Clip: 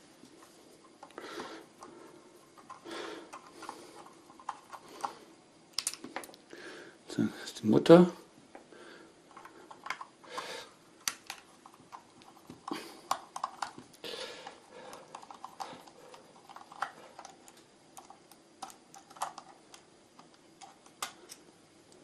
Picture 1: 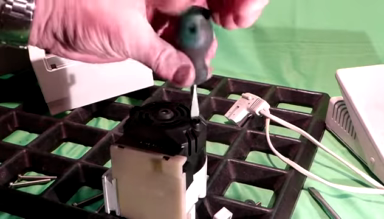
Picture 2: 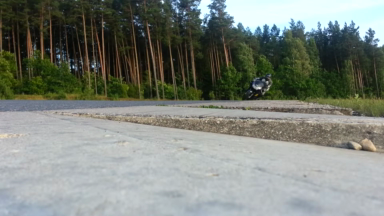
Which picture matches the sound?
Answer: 1